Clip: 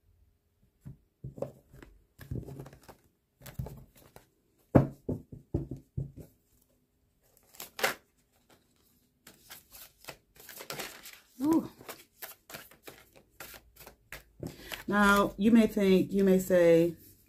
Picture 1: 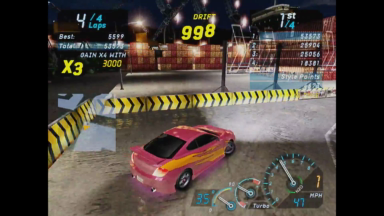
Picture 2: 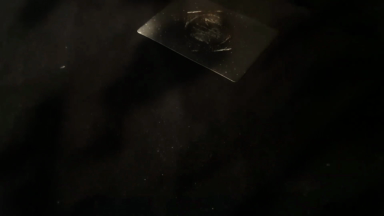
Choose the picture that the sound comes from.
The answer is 2